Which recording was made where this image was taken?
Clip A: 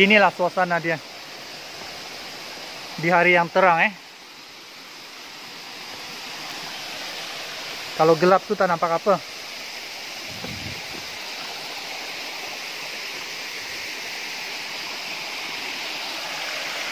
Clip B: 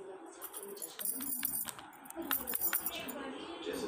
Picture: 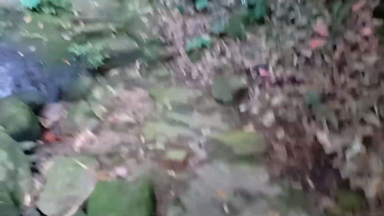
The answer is A